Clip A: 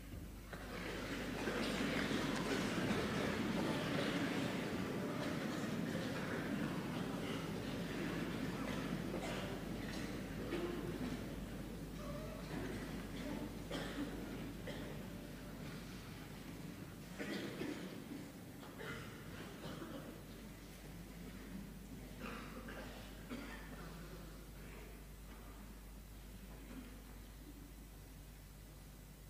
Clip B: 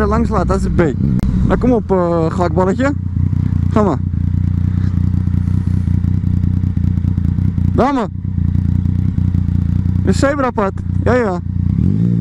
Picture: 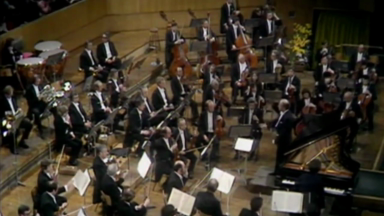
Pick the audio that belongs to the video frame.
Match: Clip A